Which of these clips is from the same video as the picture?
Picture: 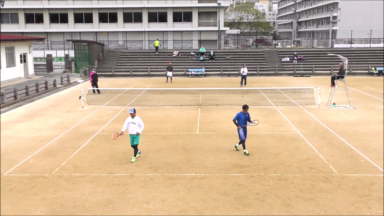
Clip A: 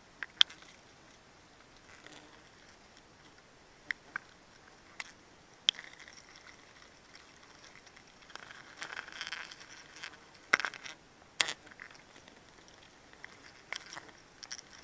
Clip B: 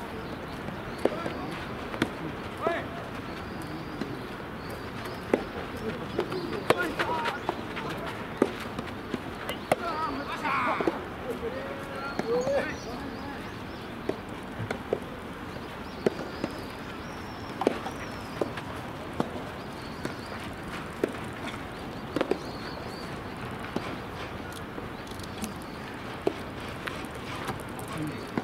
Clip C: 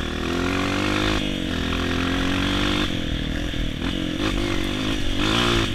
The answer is B